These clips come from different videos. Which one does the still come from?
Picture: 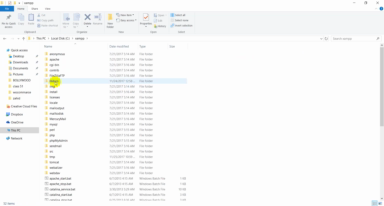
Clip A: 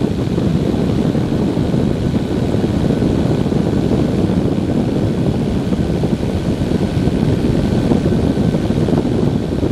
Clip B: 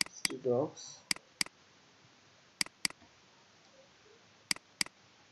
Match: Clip B